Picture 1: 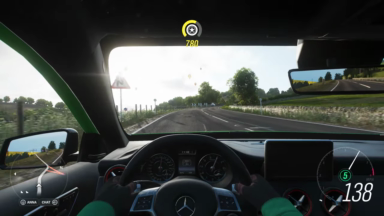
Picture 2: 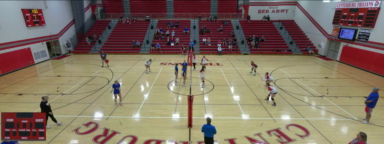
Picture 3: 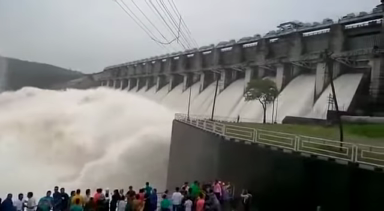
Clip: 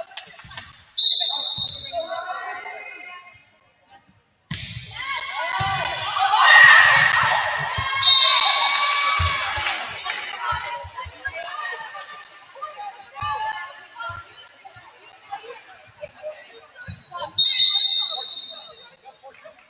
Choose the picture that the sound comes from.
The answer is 2